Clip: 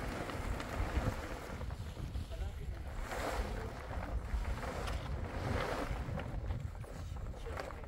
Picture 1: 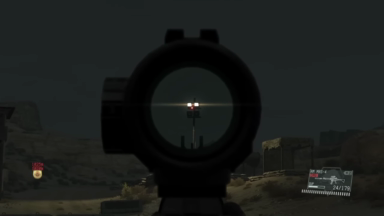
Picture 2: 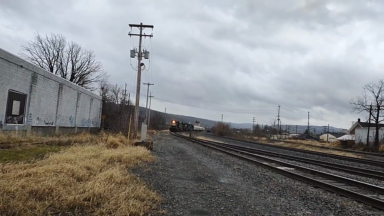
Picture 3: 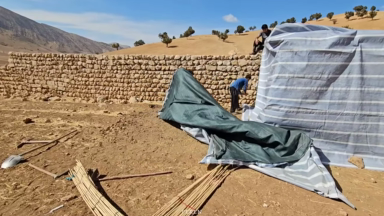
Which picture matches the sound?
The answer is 3